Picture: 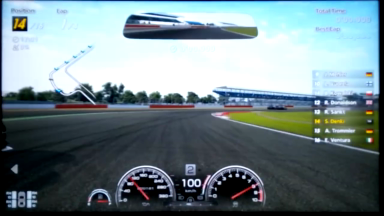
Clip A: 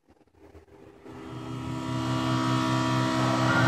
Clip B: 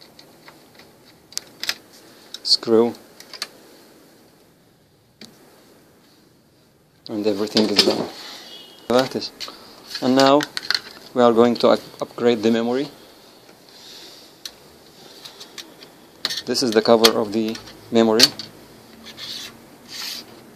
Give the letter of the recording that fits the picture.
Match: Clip A